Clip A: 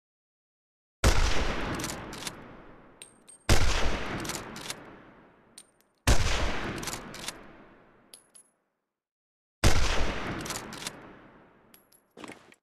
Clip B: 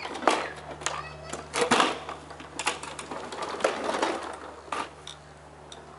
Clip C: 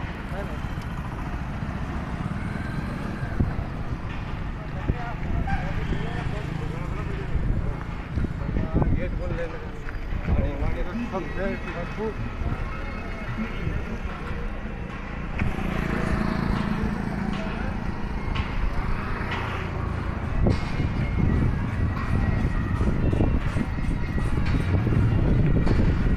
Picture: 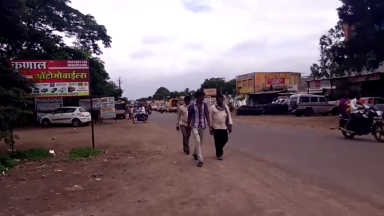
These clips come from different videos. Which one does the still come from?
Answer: C